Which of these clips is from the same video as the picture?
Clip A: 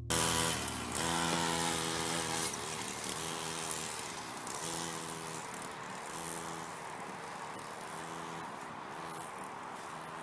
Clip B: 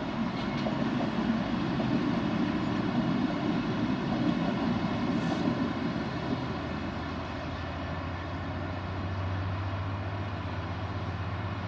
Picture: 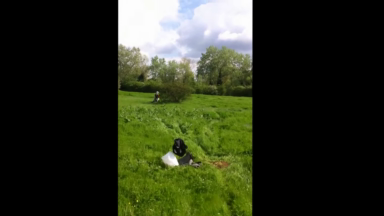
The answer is A